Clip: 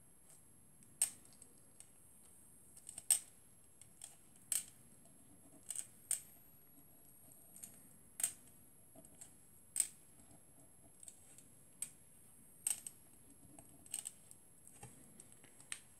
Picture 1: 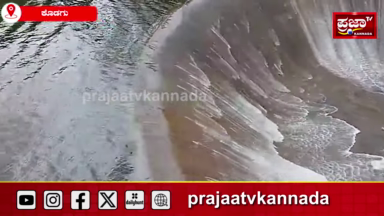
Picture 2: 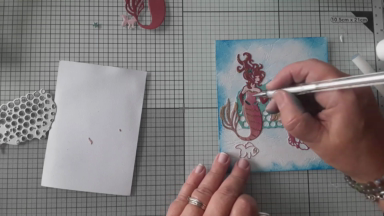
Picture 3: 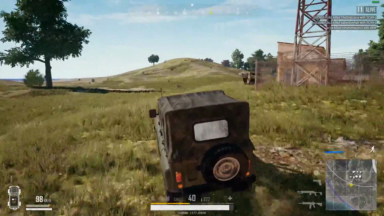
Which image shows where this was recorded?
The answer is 2